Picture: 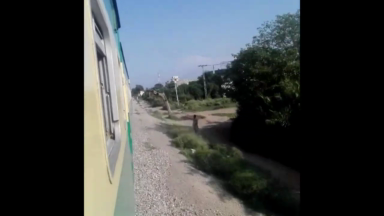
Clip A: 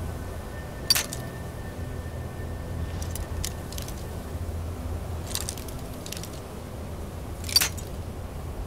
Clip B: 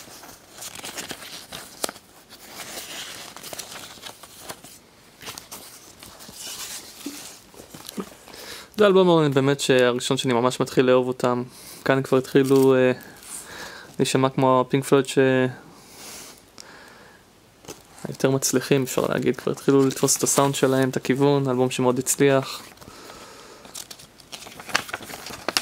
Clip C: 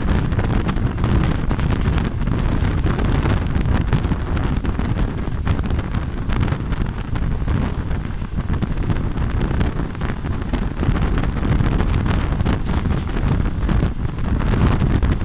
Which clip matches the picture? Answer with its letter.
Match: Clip C